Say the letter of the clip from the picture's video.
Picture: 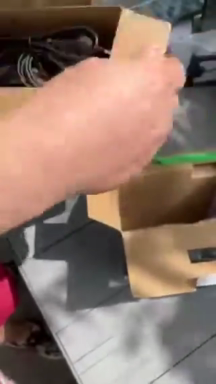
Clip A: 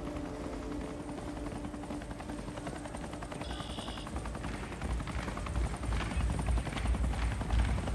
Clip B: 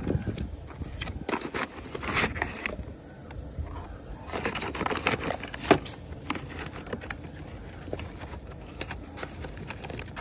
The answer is B